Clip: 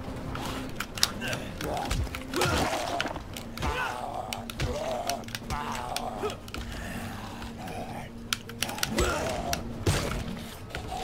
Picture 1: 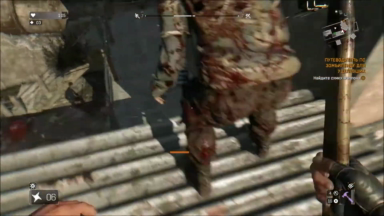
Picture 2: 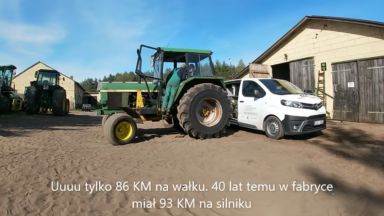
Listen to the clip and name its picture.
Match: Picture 1